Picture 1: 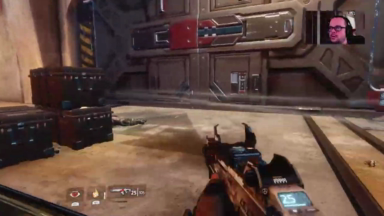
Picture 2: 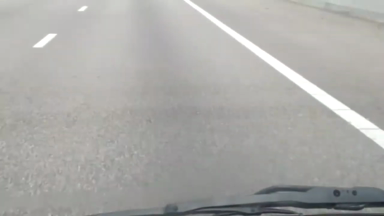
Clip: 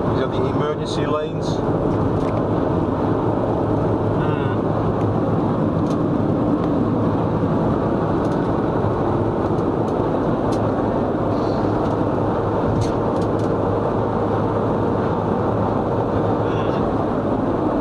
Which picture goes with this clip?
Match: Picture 2